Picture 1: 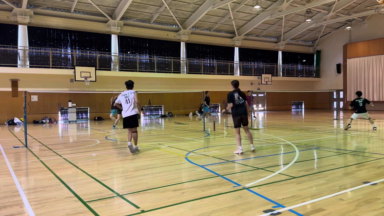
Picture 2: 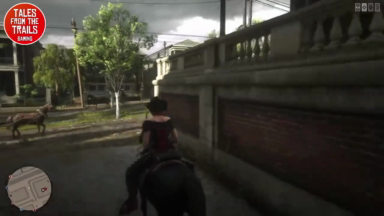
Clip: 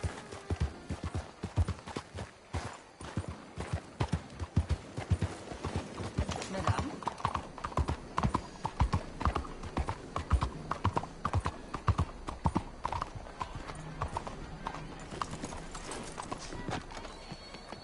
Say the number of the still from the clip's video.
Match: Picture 2